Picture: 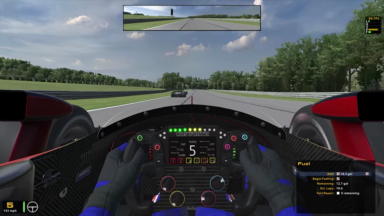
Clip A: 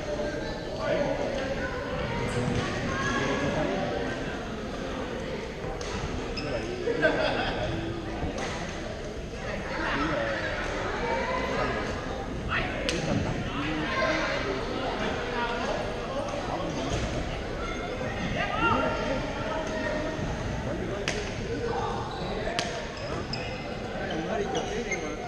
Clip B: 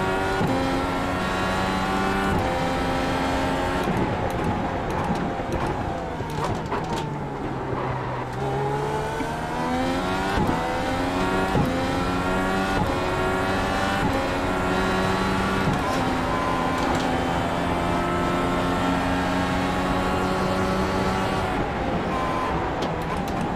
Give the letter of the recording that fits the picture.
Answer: B